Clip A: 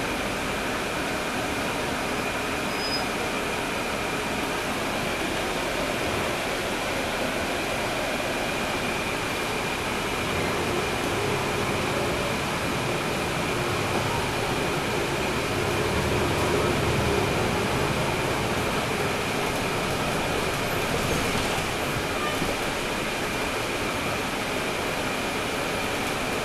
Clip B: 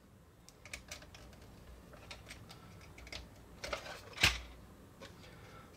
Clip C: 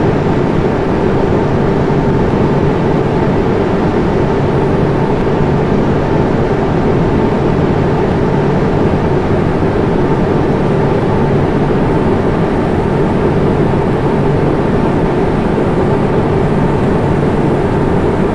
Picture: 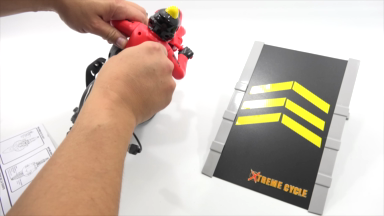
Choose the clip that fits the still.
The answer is B